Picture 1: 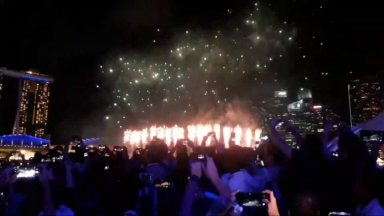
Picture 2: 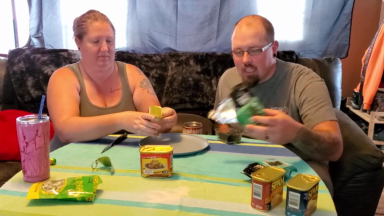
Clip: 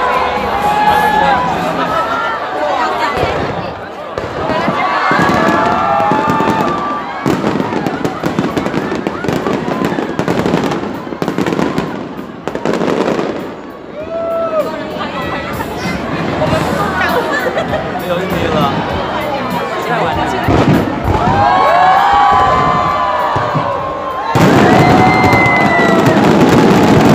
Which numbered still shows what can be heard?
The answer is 1